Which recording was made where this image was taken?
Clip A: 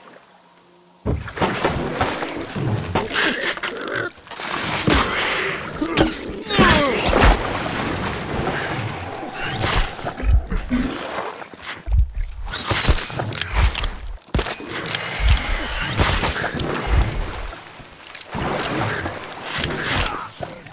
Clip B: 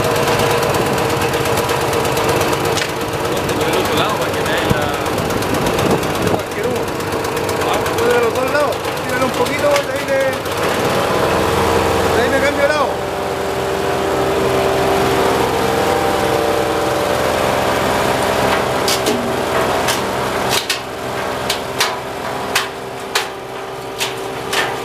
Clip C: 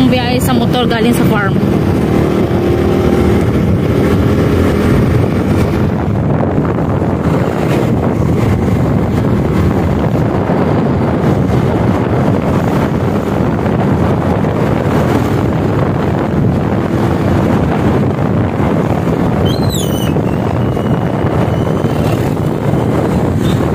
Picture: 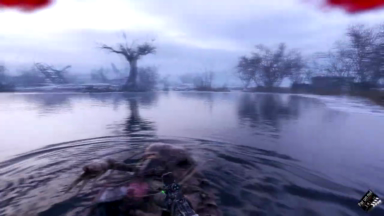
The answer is A